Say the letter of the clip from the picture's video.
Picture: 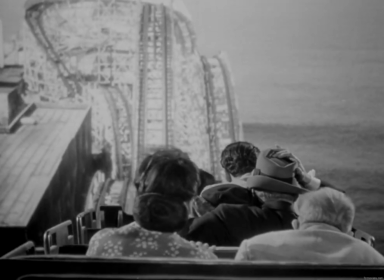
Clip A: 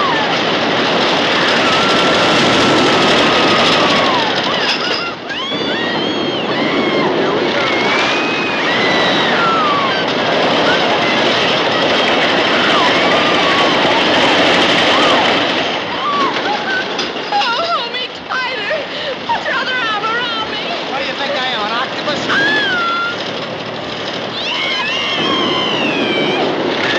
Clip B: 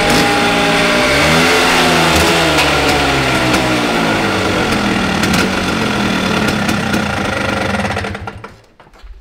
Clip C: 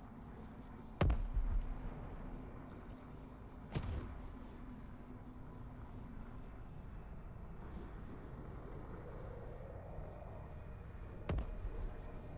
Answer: A